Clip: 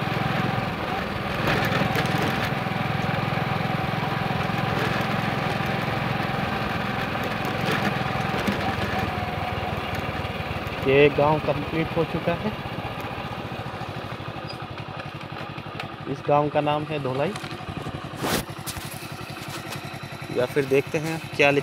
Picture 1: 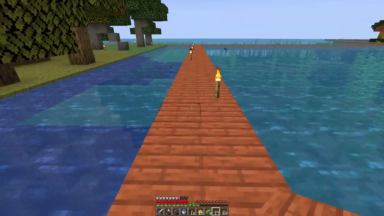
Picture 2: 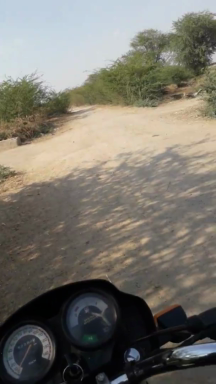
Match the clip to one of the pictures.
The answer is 2